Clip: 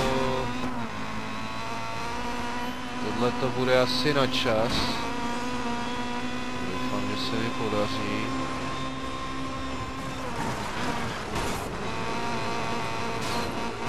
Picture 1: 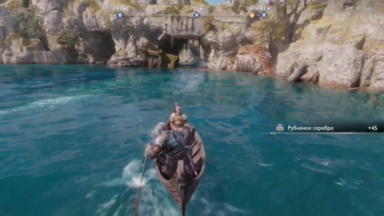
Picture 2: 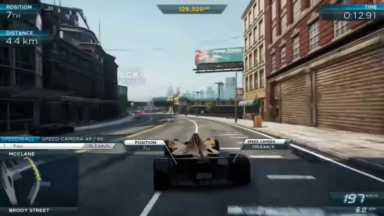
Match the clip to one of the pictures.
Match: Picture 2